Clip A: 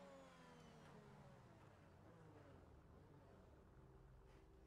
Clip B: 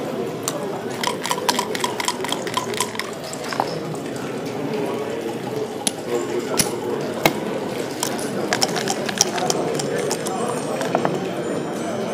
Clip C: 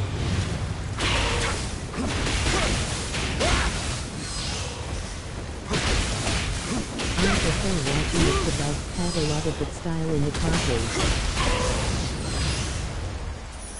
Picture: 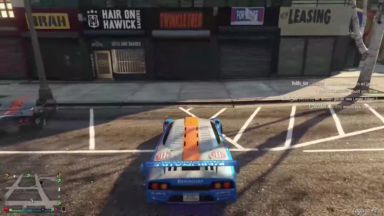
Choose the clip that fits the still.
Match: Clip A